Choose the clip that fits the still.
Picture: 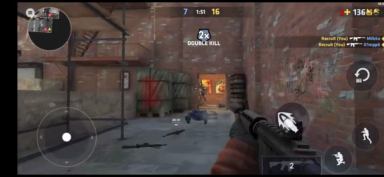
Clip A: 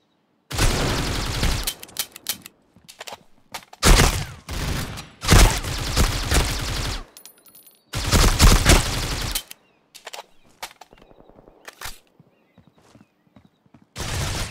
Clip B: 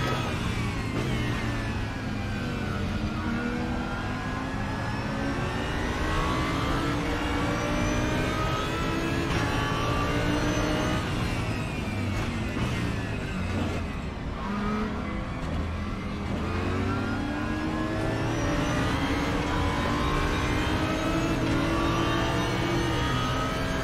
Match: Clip A